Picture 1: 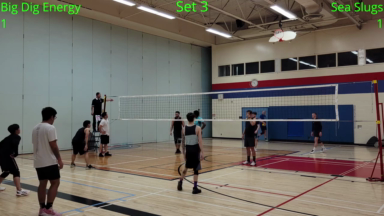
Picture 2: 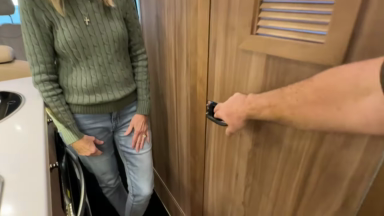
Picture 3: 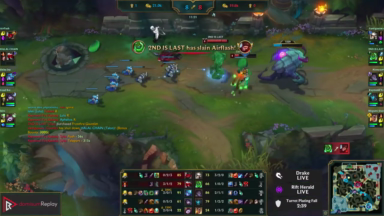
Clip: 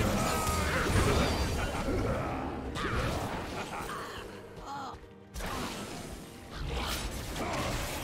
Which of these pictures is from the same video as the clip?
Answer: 3